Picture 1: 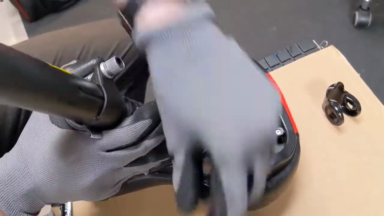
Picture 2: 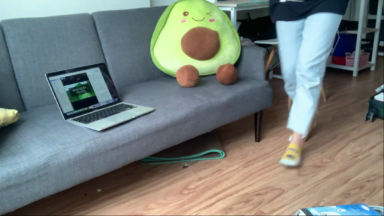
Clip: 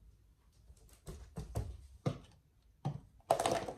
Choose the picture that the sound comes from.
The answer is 2